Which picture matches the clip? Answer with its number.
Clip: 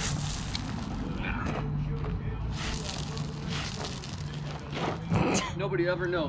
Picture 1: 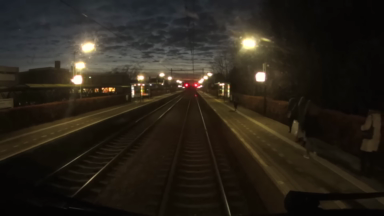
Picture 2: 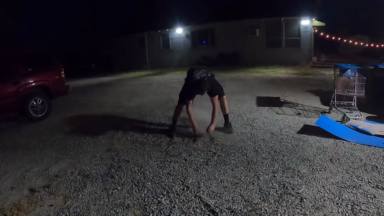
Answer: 2